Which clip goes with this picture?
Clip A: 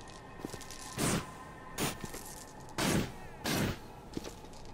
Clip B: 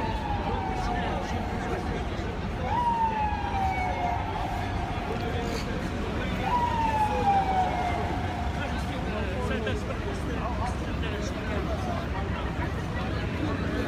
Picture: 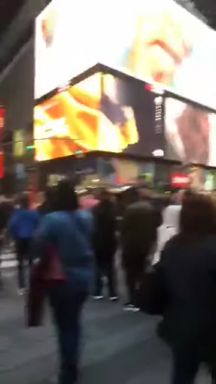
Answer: B